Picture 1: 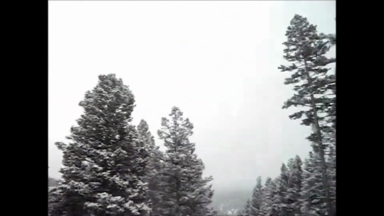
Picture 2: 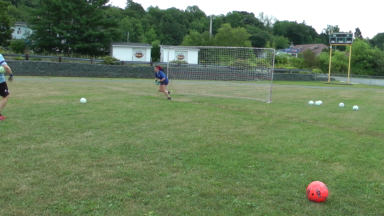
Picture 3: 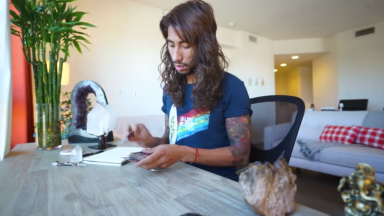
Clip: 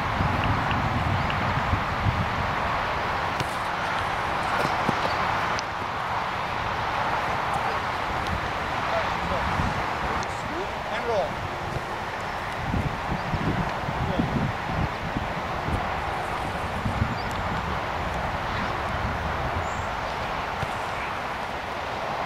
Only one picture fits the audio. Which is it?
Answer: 2